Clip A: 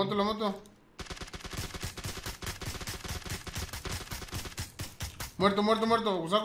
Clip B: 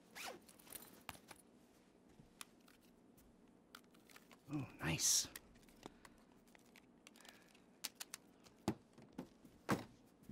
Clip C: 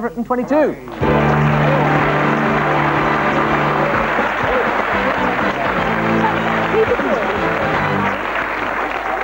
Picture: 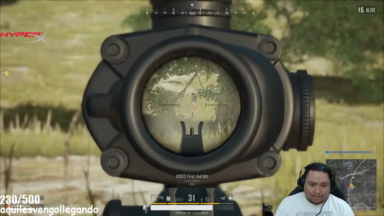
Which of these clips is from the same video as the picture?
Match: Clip A